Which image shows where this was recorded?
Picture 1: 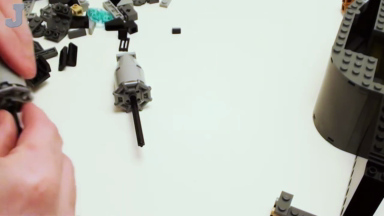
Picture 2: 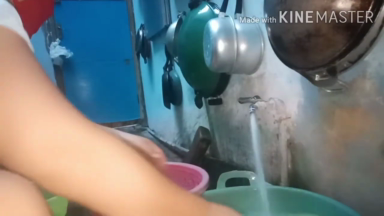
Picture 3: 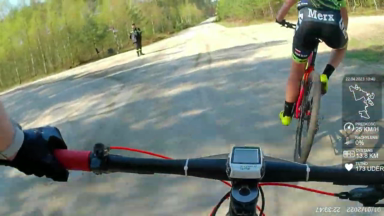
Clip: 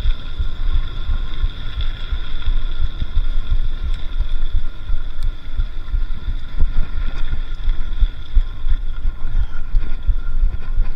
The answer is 3